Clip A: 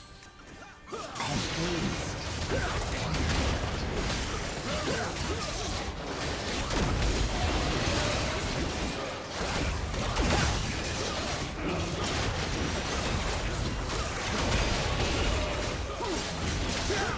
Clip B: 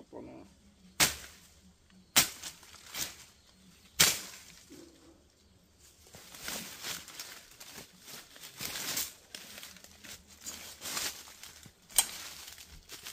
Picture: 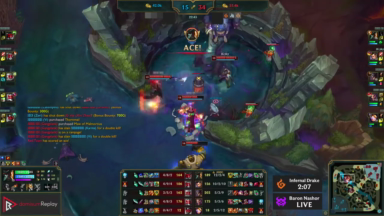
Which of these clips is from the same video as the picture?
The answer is A